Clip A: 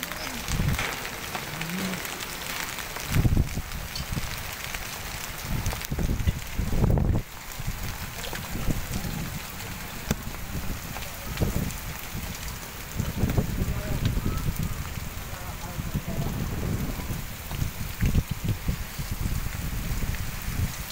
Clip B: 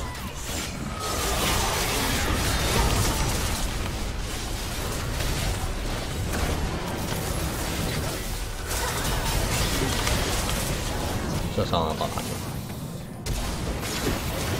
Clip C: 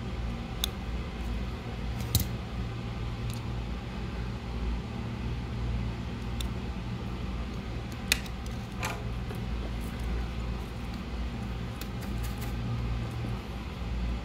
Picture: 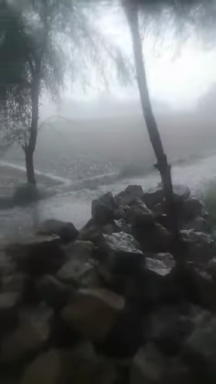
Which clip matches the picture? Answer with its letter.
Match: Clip A